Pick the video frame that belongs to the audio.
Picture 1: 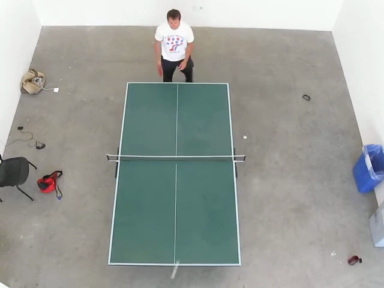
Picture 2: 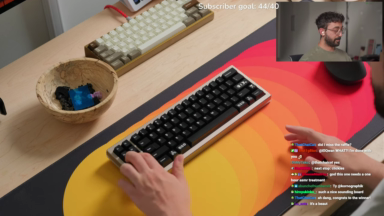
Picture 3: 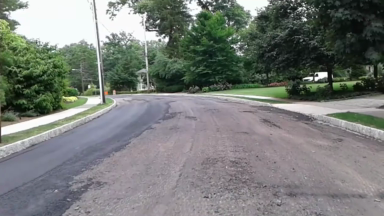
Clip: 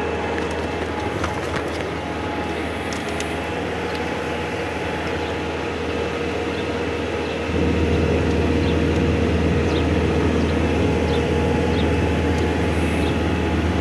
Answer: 3